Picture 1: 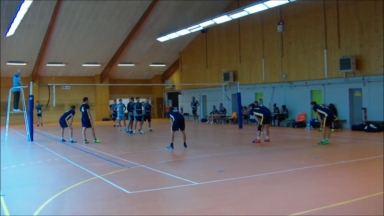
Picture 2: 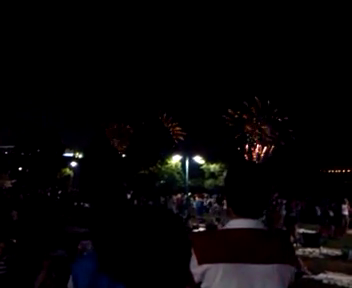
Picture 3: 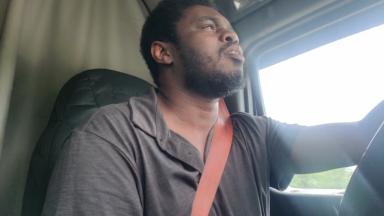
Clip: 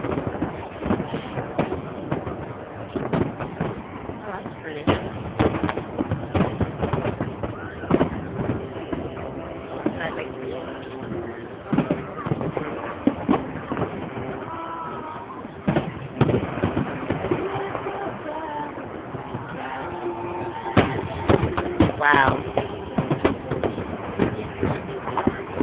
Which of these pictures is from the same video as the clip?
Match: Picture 2